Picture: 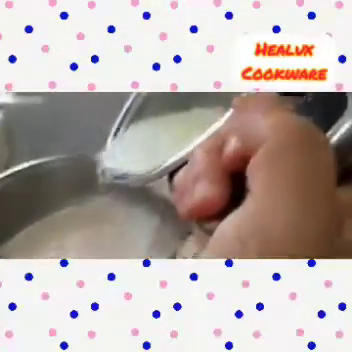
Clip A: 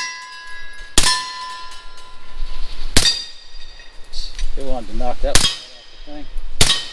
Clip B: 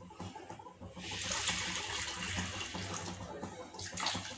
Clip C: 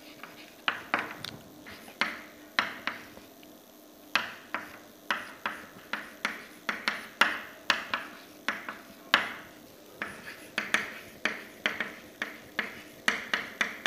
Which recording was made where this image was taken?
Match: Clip B